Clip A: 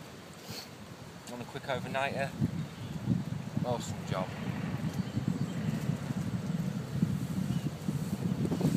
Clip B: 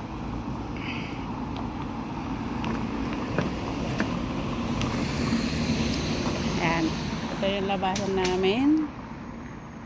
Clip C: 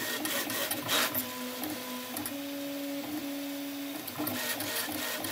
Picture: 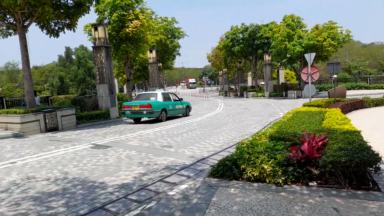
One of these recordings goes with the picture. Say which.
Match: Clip B